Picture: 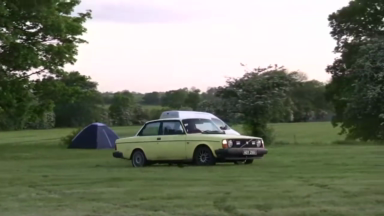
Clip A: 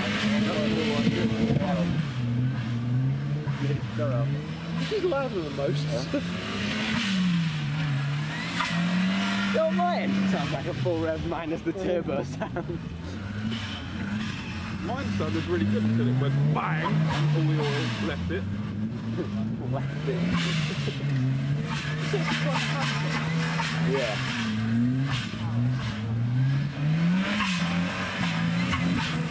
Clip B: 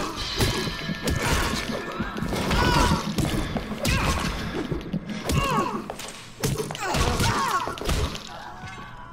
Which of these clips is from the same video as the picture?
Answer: A